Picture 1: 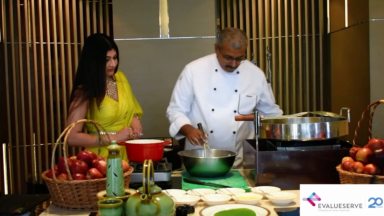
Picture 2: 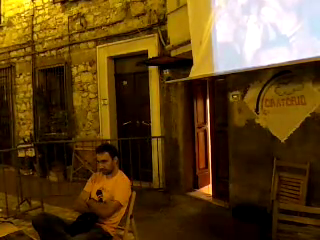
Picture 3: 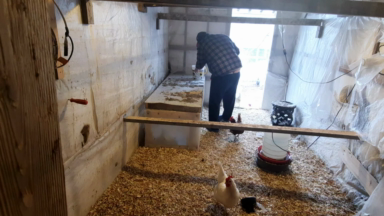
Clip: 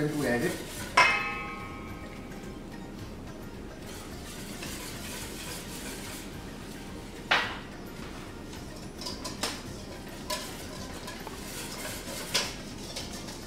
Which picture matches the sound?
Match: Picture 1